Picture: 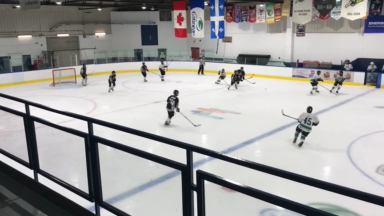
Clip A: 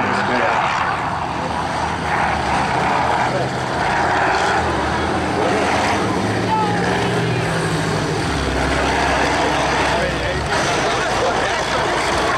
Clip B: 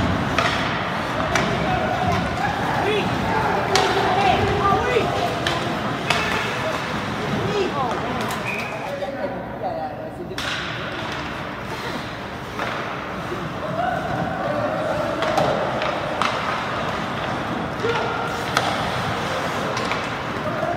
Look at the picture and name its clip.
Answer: B